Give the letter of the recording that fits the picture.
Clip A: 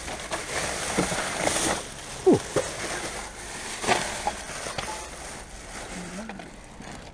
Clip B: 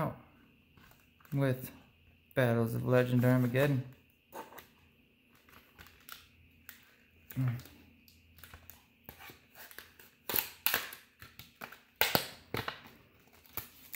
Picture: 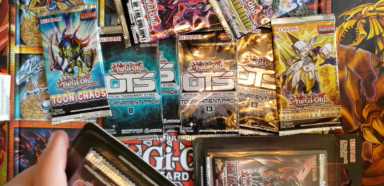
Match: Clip B